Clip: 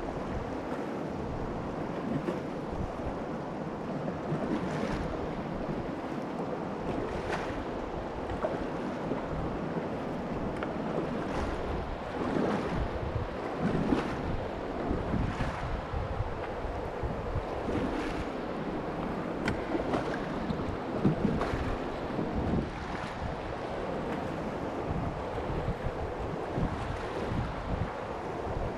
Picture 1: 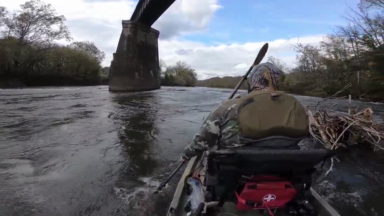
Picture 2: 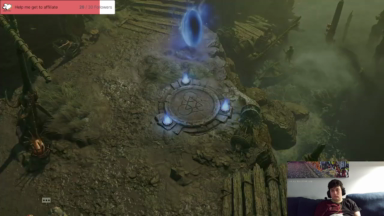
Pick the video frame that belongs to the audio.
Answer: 1